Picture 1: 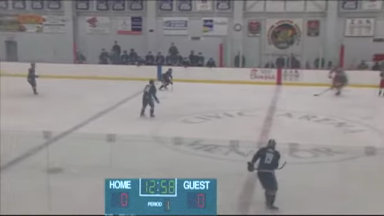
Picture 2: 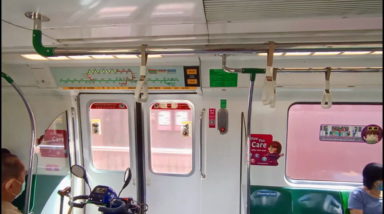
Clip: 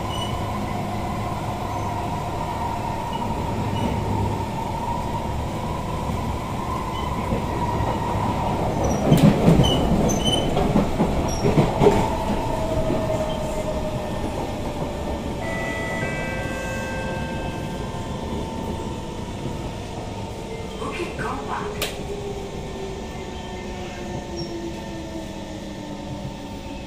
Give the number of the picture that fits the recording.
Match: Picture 2